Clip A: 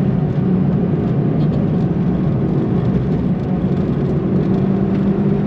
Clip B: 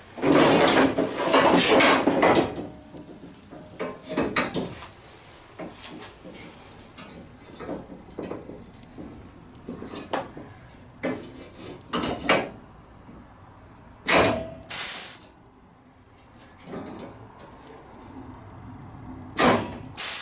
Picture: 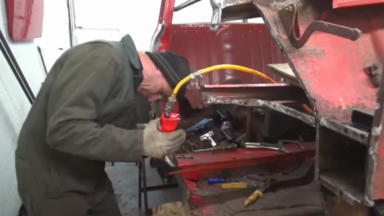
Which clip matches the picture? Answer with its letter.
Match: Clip B